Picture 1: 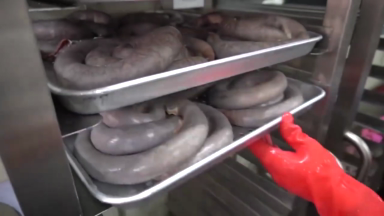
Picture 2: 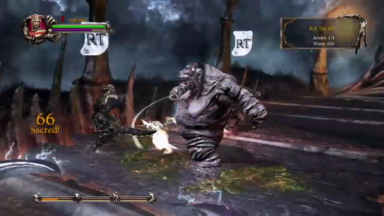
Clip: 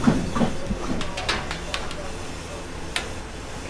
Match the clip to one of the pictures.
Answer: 1